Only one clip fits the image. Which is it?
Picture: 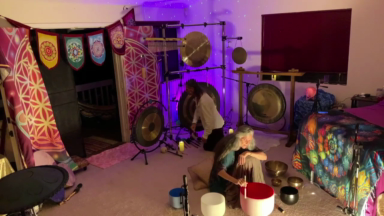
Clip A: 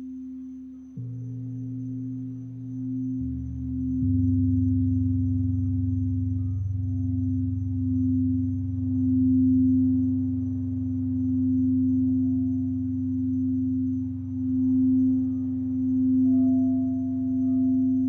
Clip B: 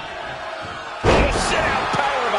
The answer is A